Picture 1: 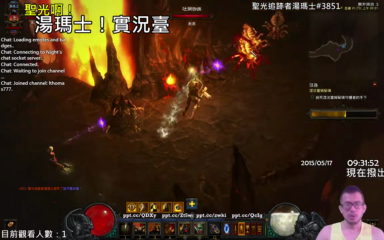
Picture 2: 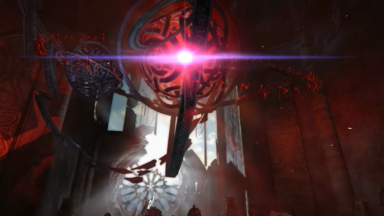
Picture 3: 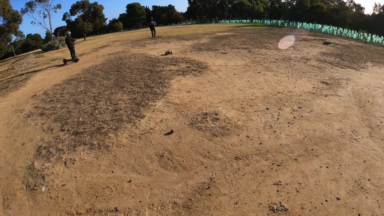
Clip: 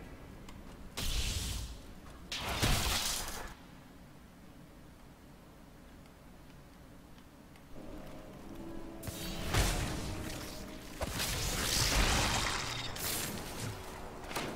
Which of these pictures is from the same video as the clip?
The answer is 1